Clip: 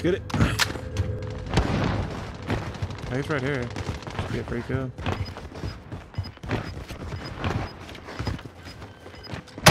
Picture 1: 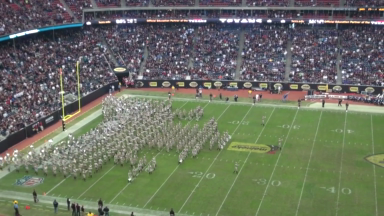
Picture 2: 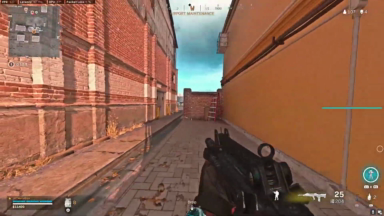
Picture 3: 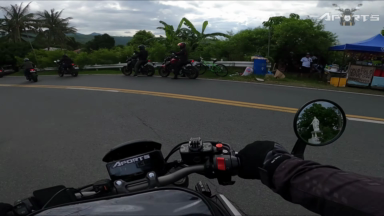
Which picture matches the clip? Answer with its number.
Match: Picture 2